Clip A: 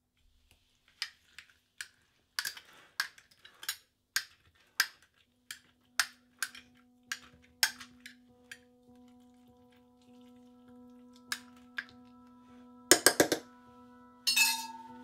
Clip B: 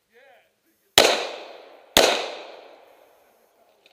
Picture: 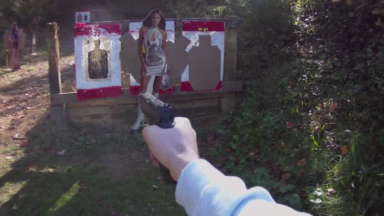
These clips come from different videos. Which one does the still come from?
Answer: B